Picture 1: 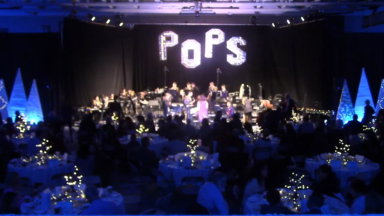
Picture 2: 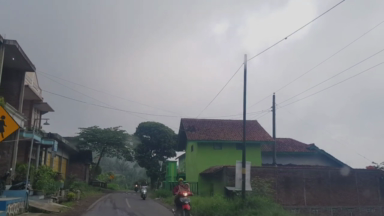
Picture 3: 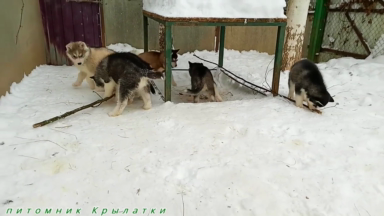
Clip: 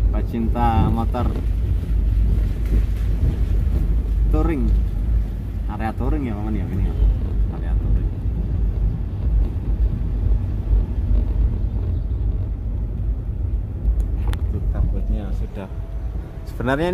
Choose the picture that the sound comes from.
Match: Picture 2